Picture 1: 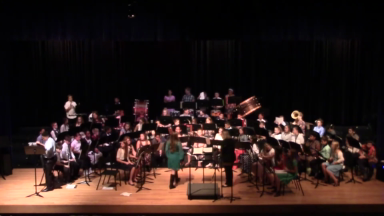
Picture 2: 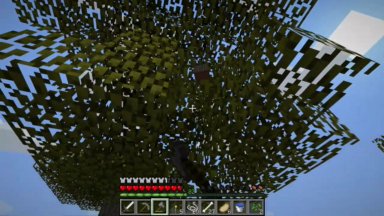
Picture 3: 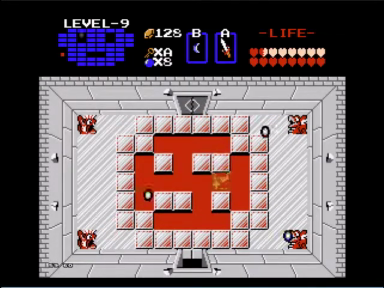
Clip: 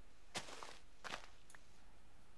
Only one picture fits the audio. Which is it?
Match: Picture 2